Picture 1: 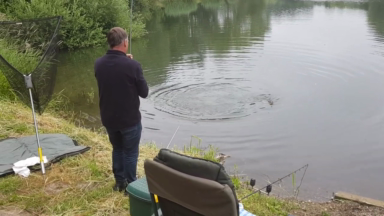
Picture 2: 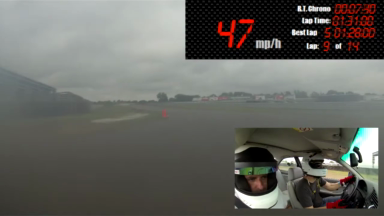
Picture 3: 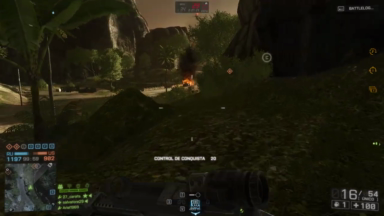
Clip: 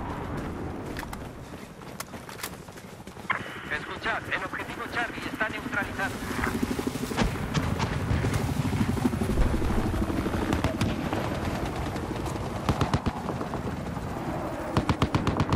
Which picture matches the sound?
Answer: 3